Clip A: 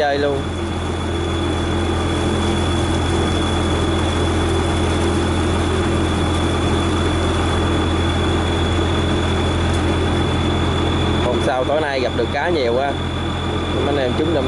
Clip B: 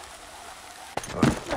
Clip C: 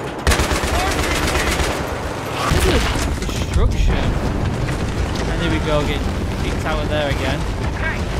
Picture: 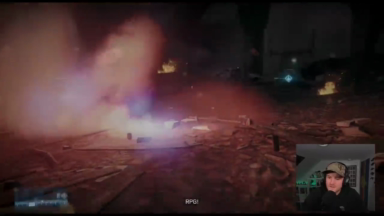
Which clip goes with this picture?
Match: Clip C